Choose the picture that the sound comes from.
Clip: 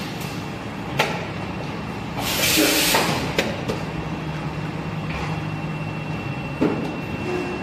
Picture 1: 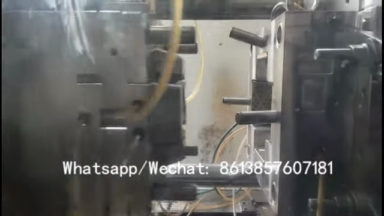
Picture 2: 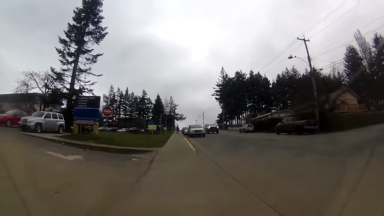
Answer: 1